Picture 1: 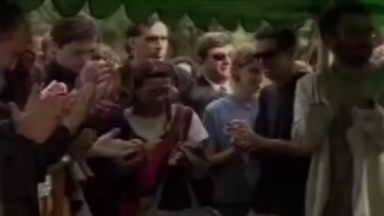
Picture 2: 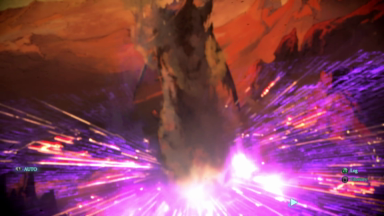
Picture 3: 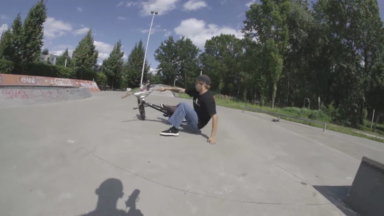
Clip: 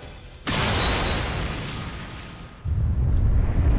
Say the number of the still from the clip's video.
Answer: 2